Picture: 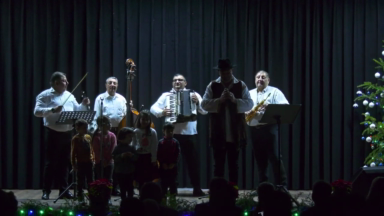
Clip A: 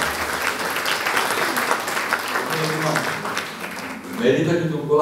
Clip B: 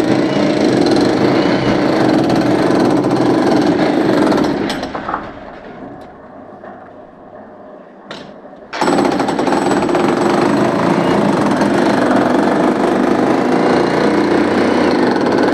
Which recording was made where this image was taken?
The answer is A